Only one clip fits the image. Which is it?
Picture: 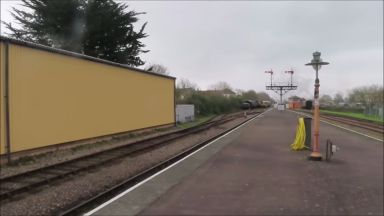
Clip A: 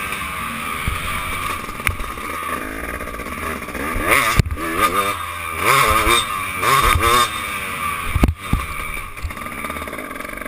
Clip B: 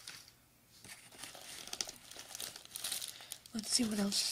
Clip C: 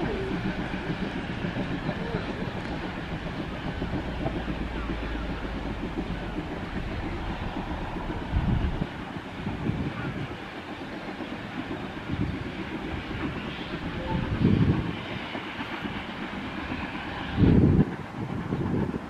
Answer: C